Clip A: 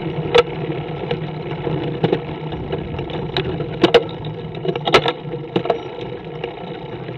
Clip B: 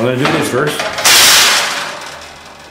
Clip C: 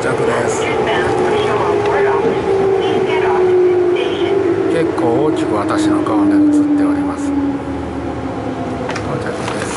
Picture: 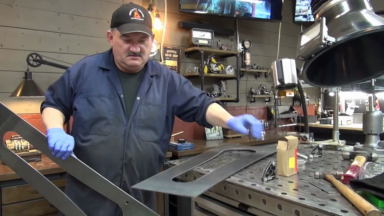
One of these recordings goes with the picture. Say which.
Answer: B